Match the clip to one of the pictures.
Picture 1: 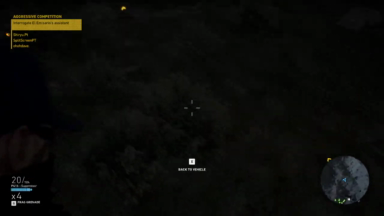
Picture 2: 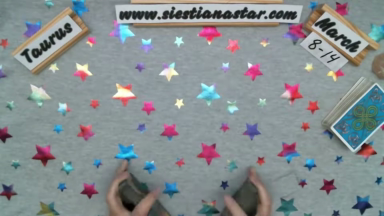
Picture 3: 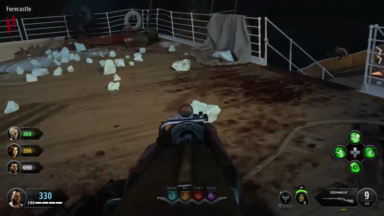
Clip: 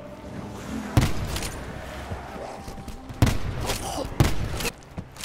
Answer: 3